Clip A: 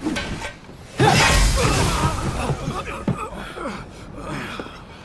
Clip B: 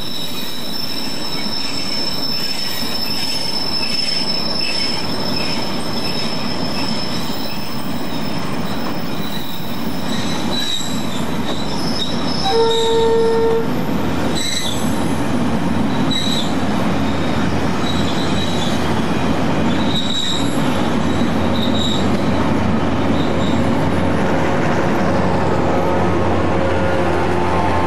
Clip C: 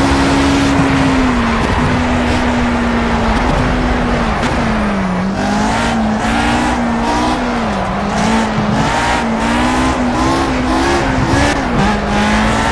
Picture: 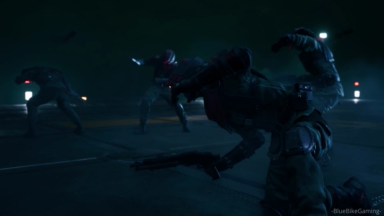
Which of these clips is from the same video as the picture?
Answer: A